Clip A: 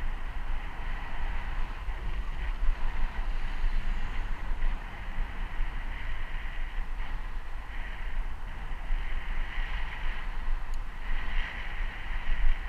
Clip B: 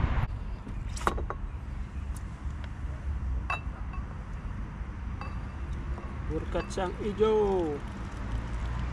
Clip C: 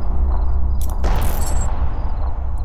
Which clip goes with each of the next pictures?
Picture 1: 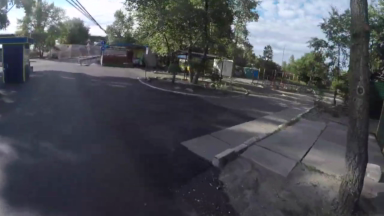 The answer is A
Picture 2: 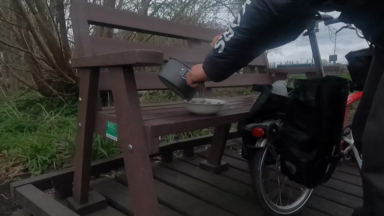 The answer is B